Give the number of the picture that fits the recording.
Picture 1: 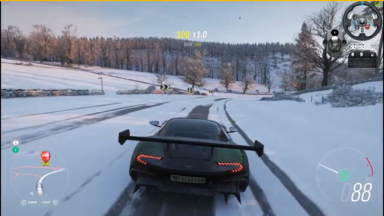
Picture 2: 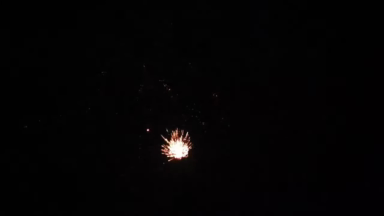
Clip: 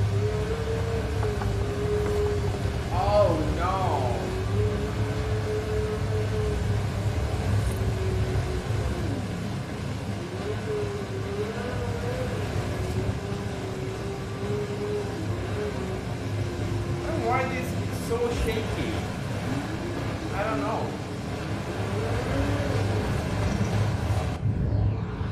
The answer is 1